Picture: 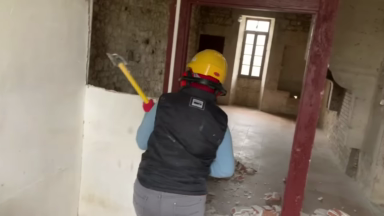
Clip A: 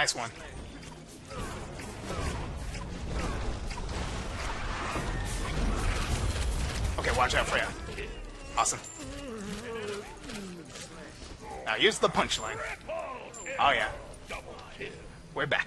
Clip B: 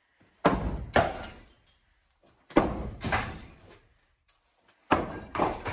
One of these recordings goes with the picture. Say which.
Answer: B